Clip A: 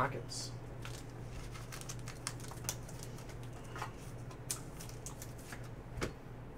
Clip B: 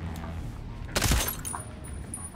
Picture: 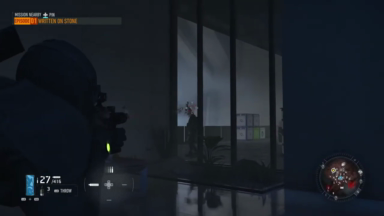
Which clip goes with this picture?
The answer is B